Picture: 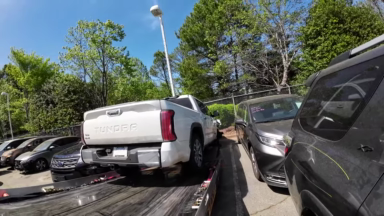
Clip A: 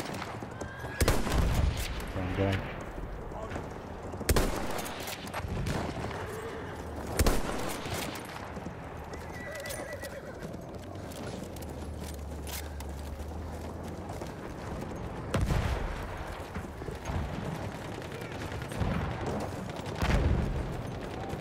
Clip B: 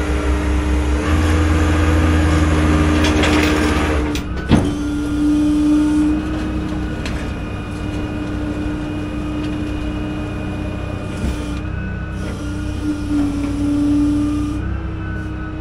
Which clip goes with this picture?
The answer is B